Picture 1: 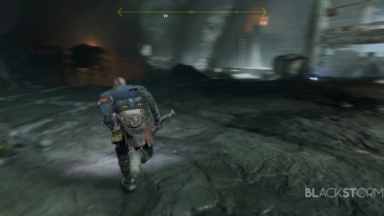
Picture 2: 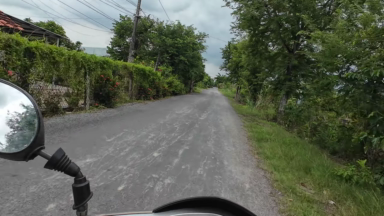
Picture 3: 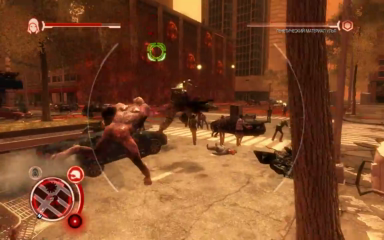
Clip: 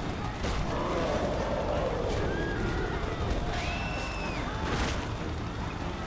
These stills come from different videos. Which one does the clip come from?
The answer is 3